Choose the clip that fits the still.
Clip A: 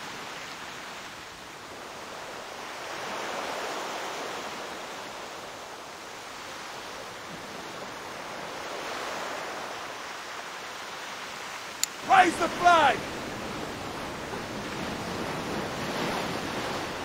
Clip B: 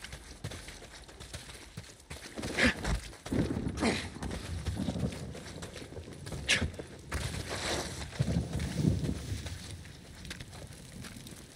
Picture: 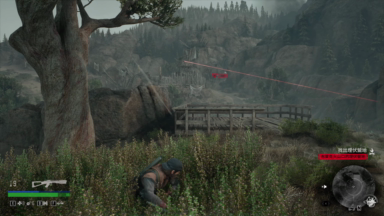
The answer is B